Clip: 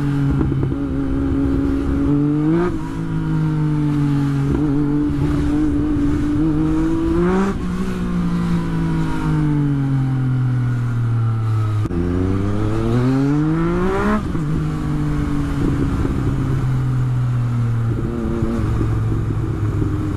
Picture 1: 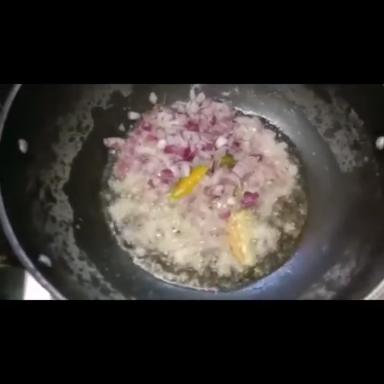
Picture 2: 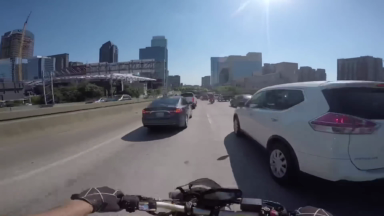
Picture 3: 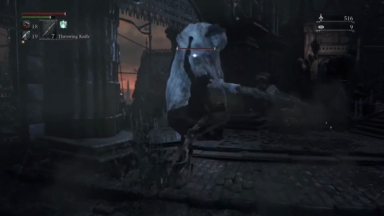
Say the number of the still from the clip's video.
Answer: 2